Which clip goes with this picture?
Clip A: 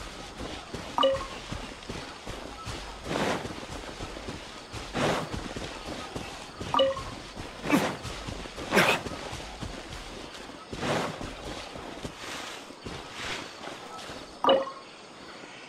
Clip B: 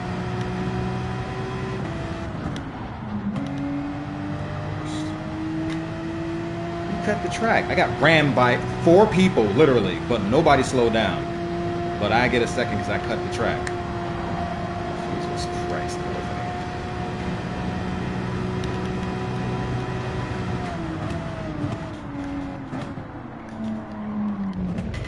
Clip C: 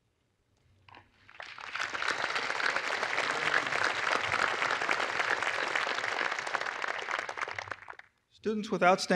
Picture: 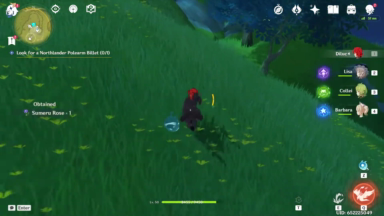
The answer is A